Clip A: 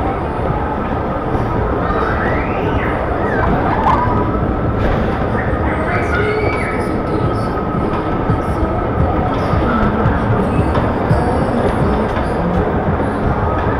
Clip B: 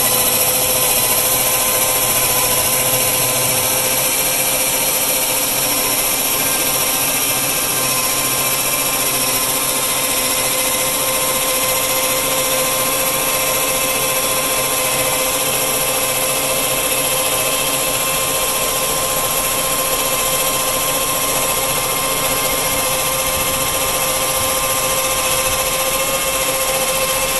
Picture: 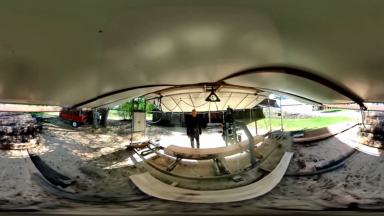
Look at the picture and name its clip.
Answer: B